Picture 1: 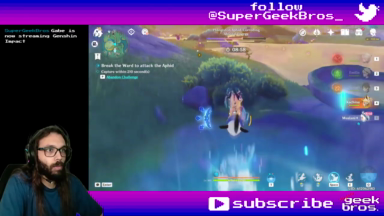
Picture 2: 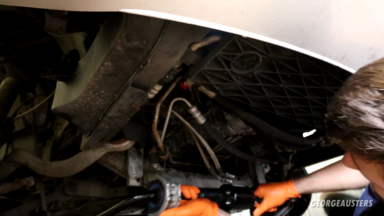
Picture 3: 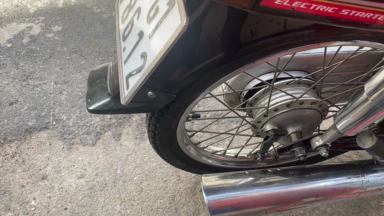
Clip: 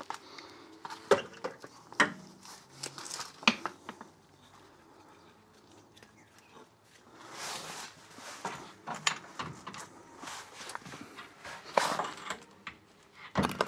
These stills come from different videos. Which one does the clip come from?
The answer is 2